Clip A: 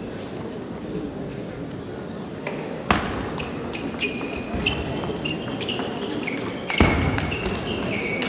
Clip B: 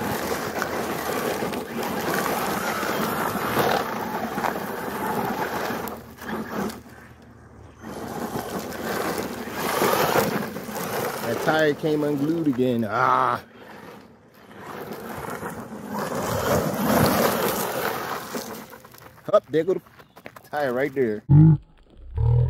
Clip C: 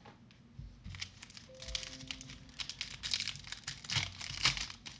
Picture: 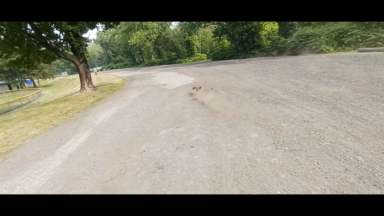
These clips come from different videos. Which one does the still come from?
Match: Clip B